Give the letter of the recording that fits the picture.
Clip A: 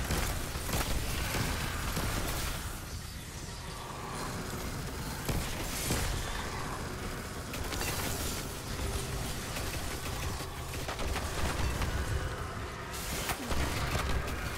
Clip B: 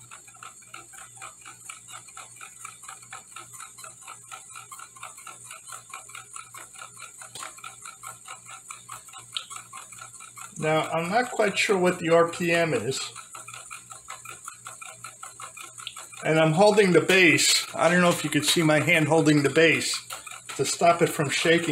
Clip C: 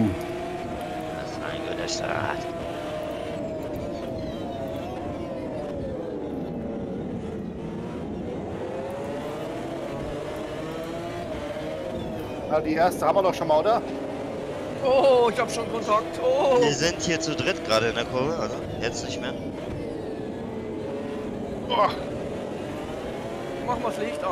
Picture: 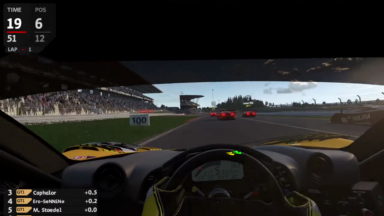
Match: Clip C